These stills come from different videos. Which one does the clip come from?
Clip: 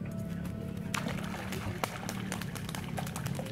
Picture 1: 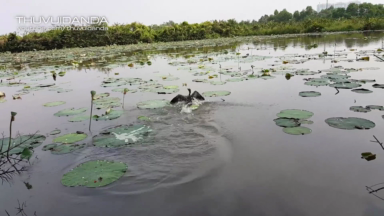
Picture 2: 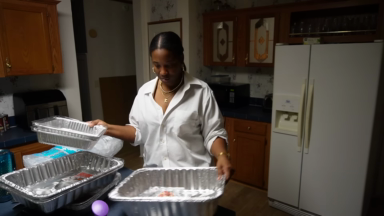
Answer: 1